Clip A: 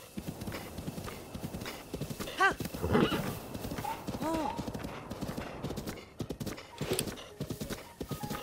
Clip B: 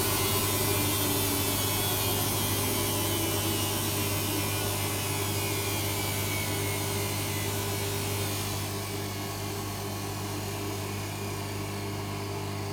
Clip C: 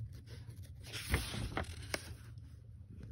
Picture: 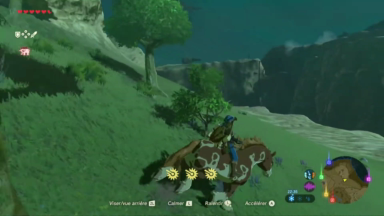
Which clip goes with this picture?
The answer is A